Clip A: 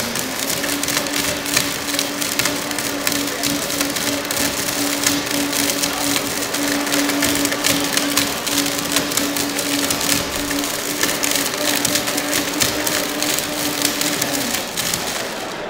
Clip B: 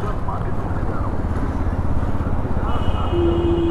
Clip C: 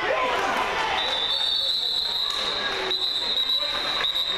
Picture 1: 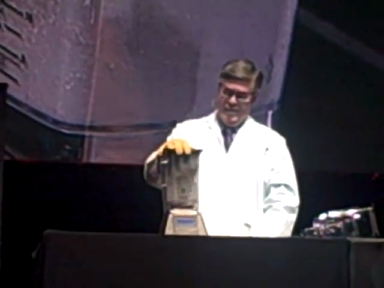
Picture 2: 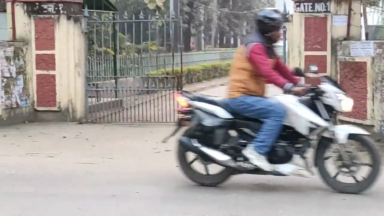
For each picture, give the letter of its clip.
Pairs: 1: A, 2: B